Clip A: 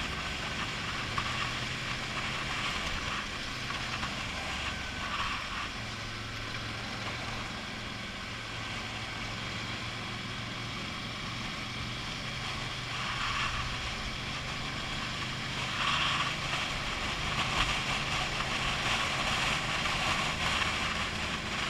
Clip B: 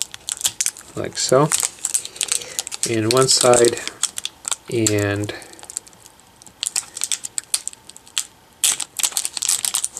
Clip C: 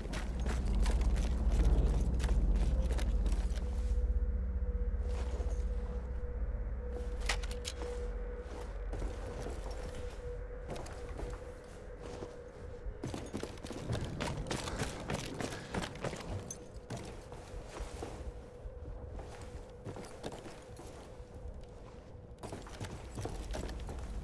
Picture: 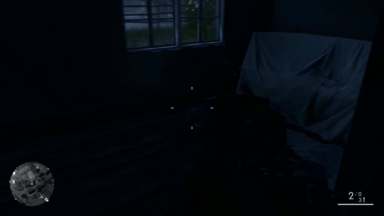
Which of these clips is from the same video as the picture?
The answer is C